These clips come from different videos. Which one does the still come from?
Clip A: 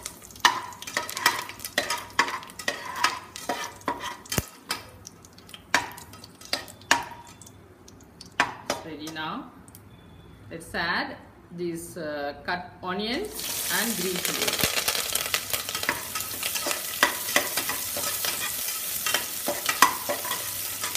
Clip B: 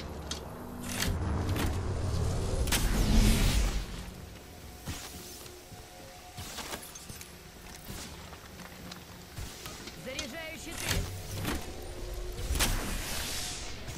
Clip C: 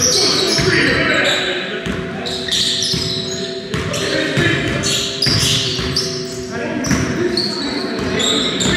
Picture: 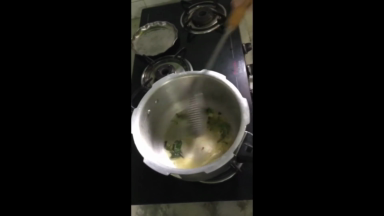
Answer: A